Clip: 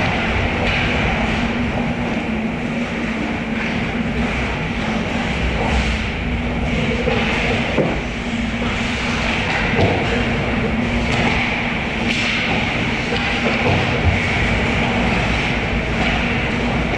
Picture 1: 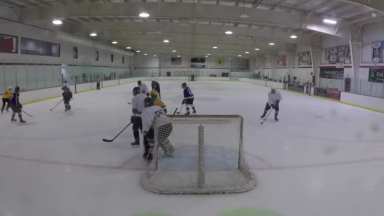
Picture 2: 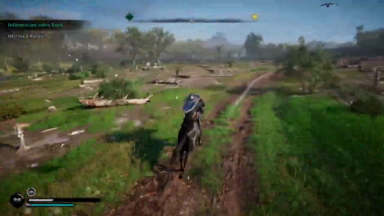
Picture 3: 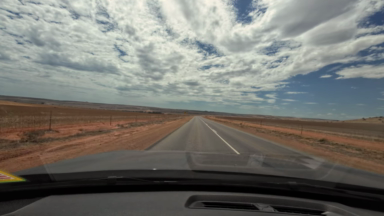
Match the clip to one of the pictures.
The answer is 1